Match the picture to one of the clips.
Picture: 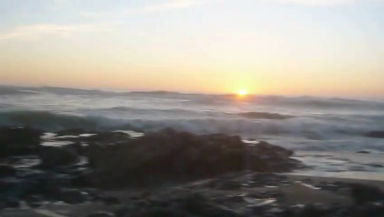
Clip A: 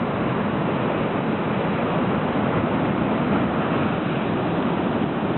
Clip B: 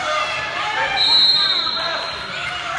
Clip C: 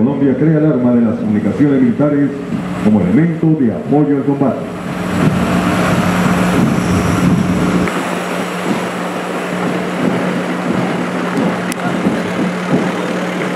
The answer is A